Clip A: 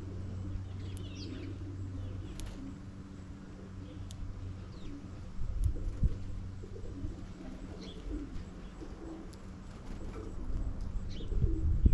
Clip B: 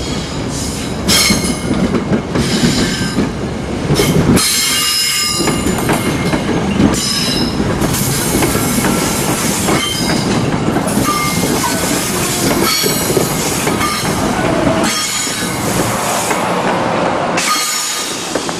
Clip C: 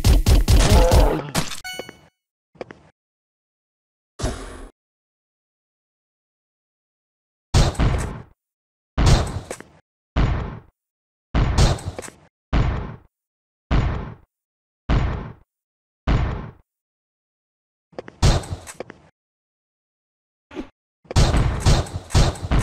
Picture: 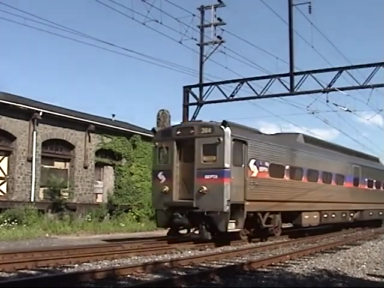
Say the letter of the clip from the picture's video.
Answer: B